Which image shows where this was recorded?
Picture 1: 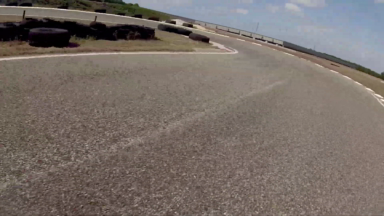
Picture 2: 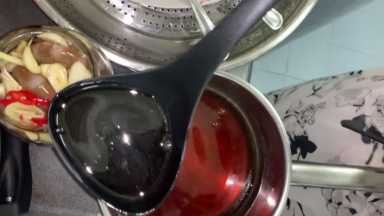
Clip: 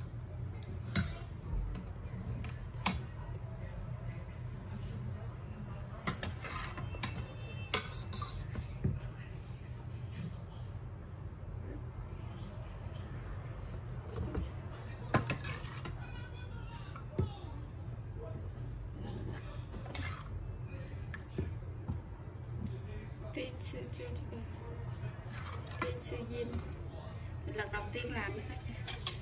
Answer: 2